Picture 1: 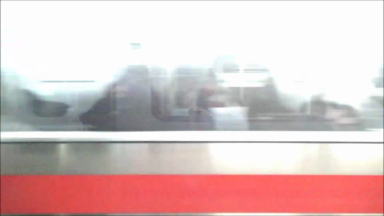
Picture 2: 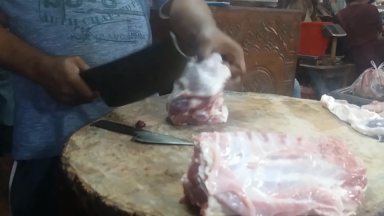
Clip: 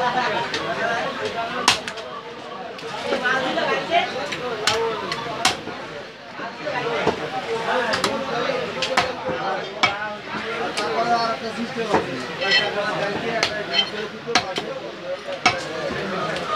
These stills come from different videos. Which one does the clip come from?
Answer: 2